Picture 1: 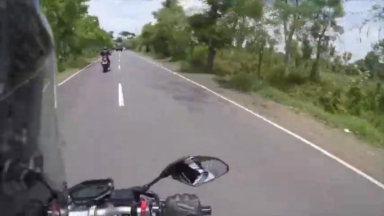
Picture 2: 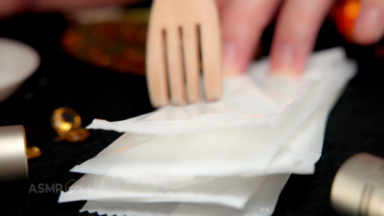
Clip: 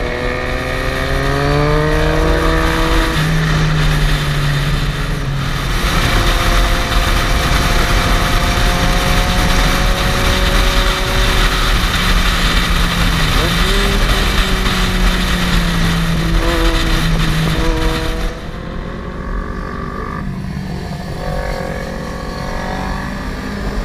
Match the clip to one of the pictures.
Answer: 1